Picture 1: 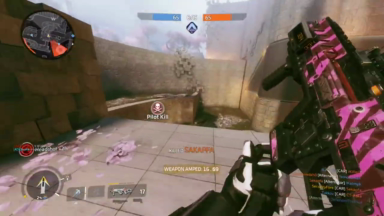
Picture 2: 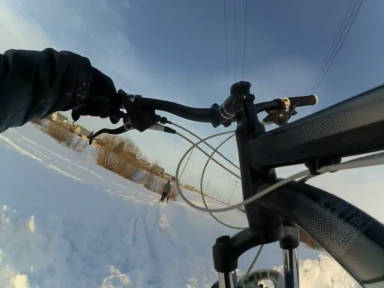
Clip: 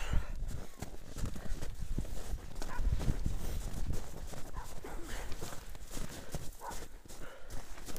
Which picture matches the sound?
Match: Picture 2